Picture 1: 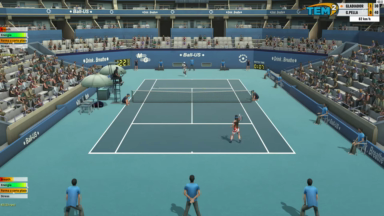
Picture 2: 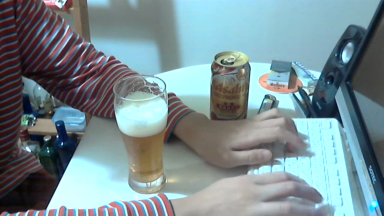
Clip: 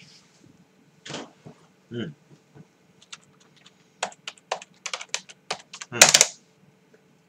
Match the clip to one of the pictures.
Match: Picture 2